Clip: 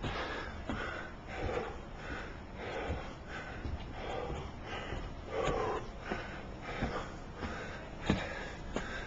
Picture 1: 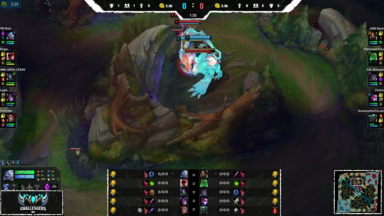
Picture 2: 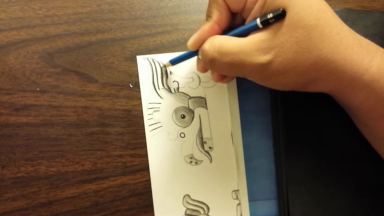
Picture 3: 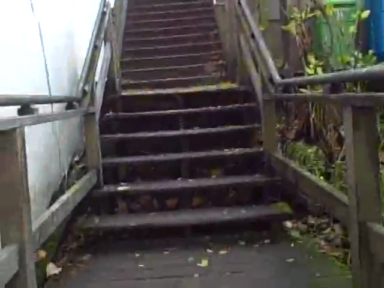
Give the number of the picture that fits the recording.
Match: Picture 3